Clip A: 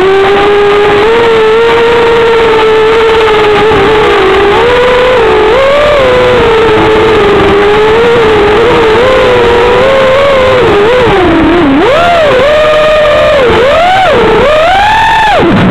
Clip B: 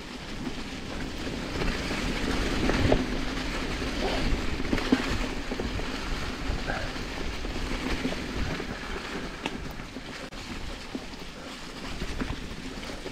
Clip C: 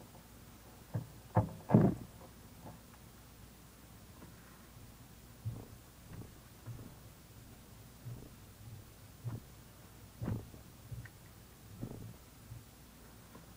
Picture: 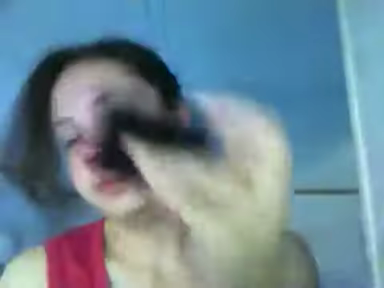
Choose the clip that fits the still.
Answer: C